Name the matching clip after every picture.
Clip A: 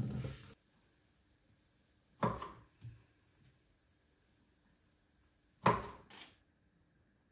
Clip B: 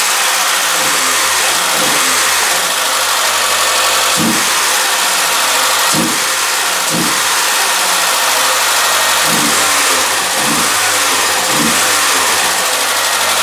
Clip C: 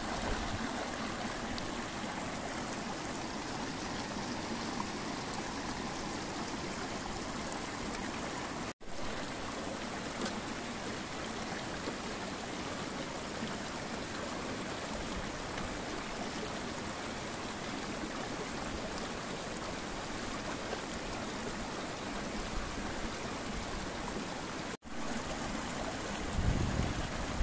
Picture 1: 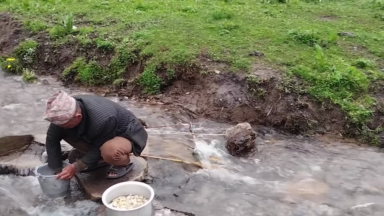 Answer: C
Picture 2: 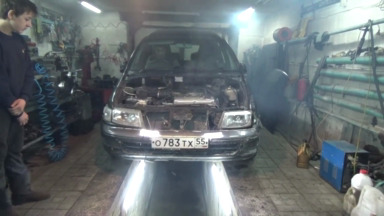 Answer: B